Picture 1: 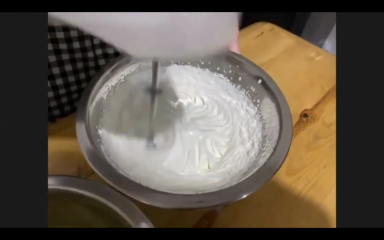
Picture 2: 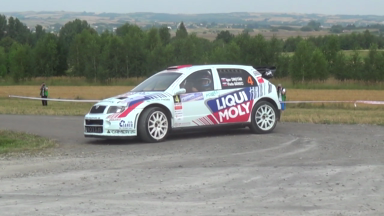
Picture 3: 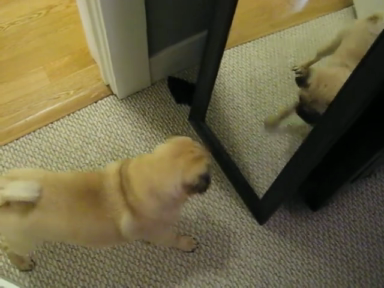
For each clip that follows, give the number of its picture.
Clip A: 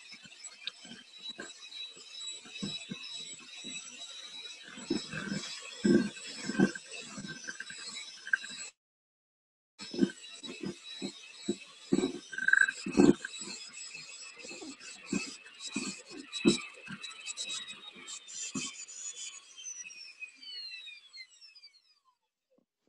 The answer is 1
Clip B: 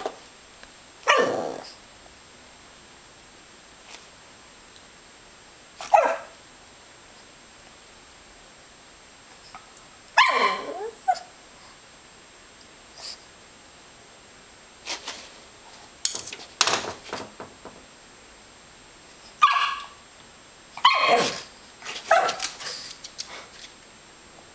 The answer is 3